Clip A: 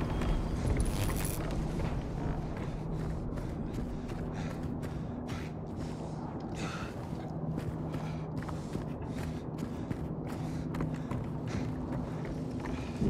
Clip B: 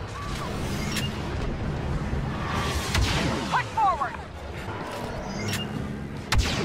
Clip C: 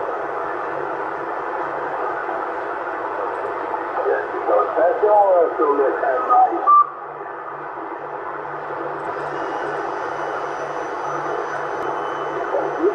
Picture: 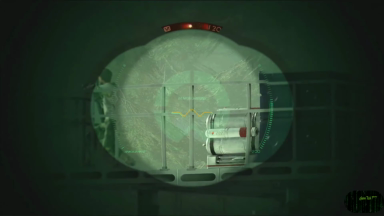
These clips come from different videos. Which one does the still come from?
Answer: B